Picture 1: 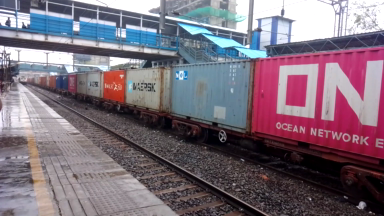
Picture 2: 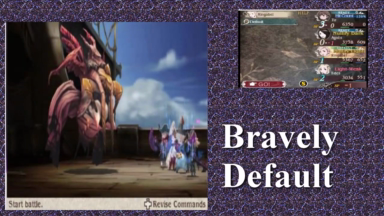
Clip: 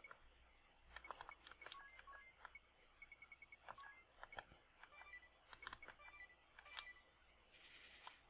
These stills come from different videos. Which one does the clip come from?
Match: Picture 2